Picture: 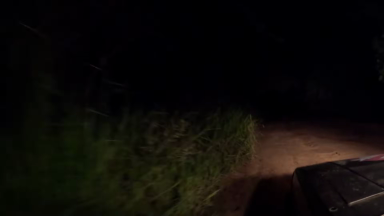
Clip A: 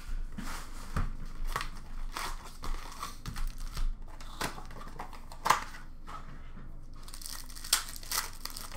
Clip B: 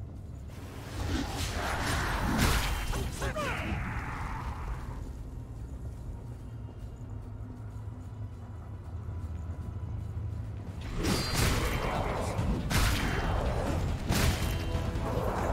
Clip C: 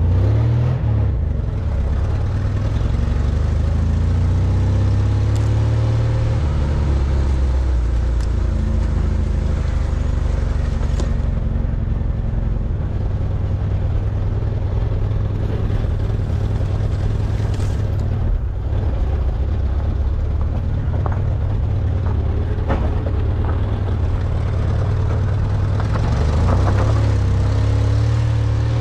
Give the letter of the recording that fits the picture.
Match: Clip C